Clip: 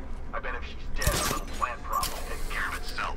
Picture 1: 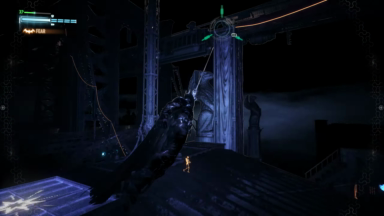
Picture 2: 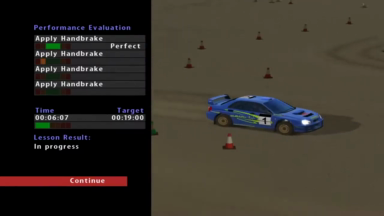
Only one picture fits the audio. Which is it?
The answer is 1